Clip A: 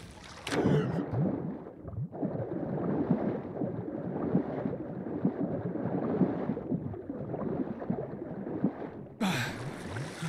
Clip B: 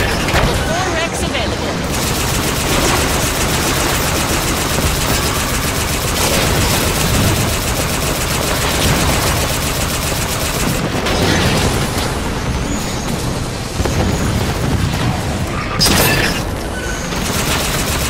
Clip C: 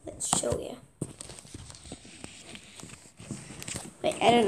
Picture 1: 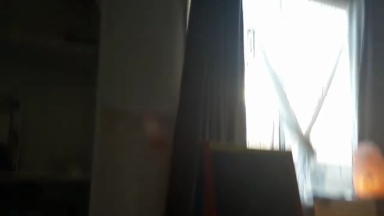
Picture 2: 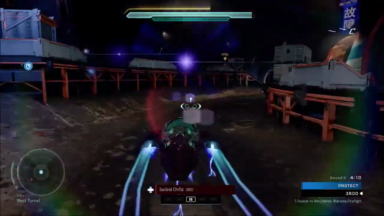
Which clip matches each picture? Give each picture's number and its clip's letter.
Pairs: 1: C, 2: B